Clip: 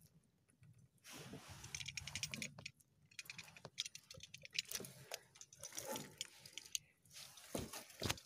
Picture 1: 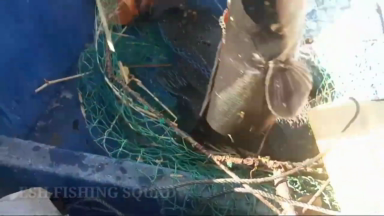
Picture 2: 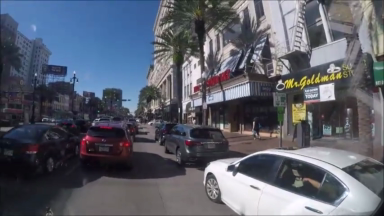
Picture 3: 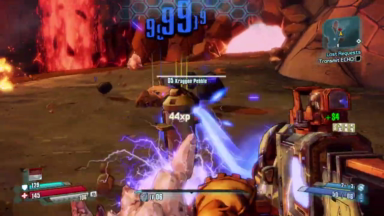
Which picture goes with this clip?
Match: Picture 1